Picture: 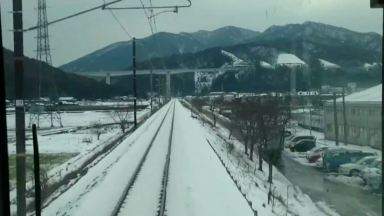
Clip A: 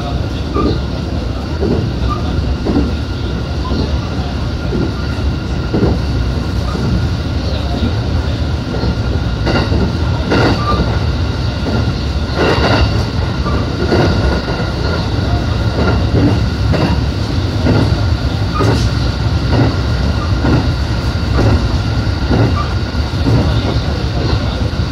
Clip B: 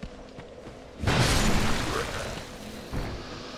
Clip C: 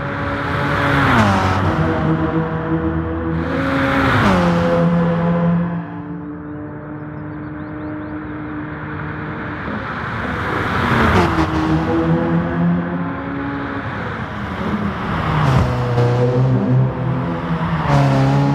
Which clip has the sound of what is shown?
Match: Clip A